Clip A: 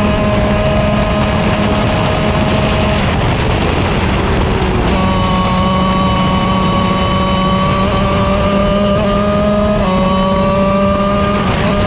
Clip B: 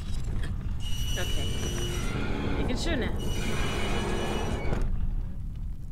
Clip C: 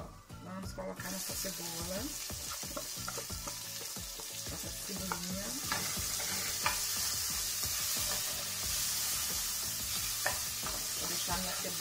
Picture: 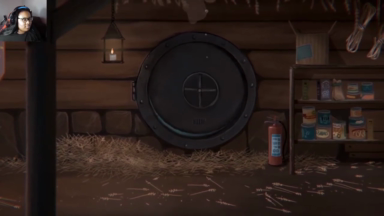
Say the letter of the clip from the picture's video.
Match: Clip B